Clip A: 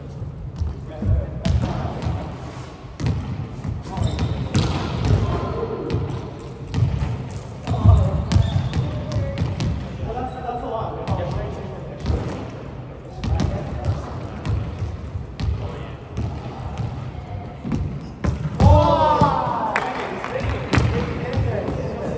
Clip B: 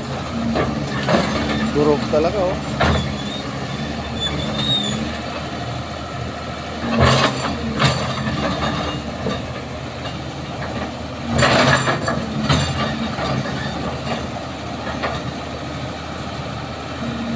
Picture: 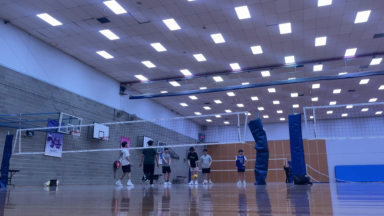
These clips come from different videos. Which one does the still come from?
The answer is A